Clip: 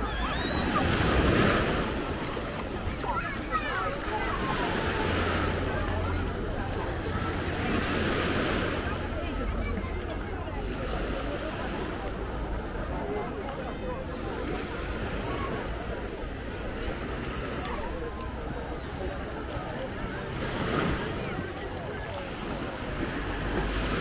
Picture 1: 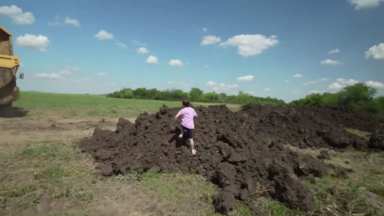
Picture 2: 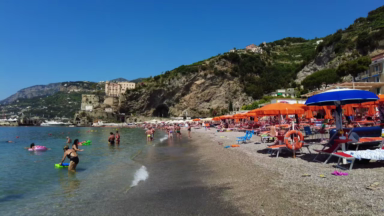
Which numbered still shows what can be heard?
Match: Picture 2